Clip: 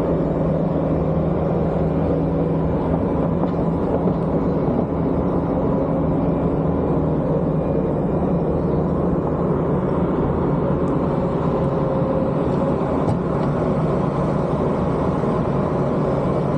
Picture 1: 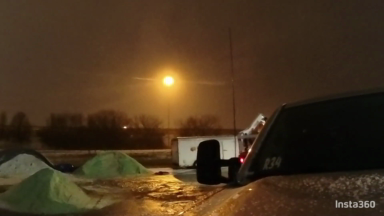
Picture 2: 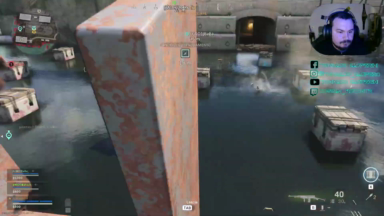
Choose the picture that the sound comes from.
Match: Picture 1